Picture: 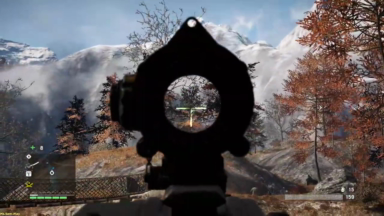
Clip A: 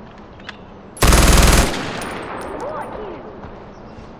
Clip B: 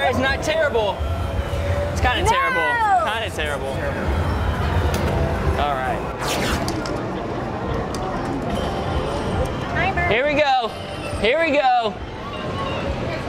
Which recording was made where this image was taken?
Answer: A